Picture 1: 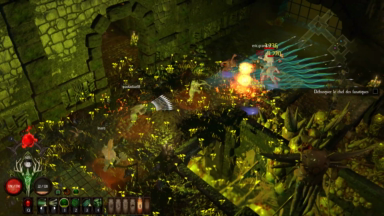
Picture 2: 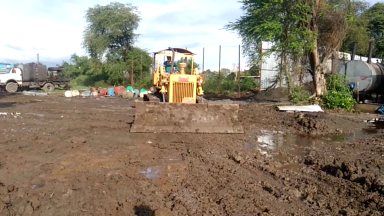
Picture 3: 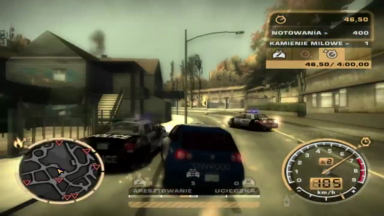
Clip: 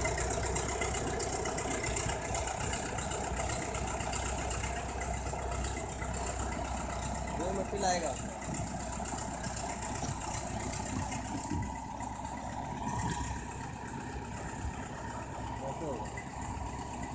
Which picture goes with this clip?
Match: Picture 2